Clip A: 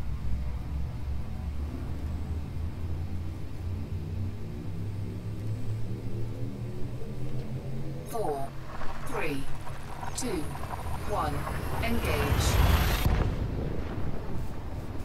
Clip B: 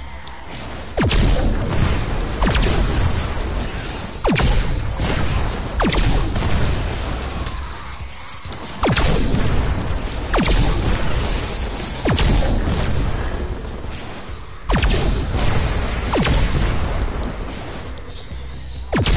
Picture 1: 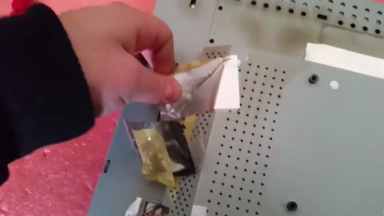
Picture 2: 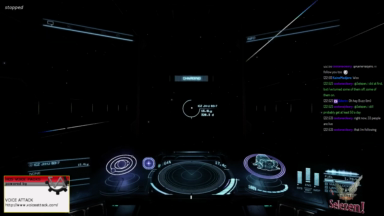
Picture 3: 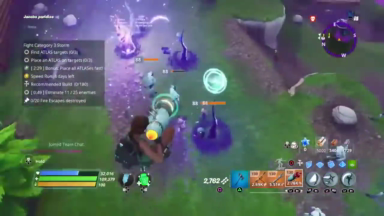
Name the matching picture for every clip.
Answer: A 2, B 3